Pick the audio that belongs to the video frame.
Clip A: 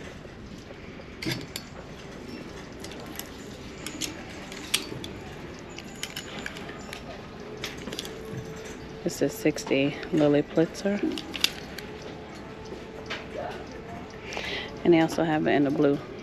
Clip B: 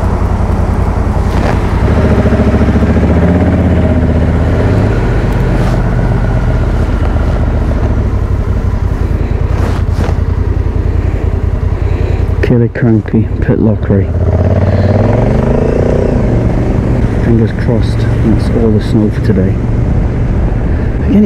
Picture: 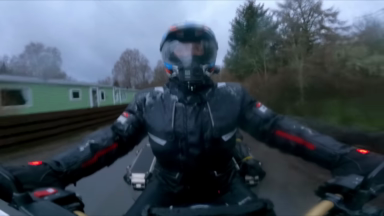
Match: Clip B